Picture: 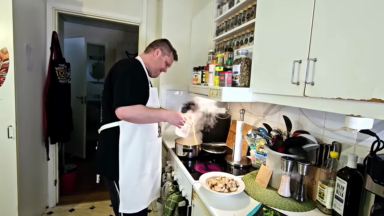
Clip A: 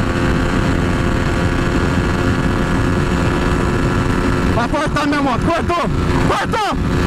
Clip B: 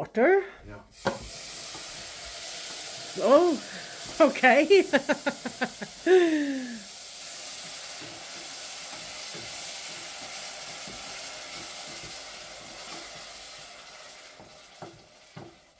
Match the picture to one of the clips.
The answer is B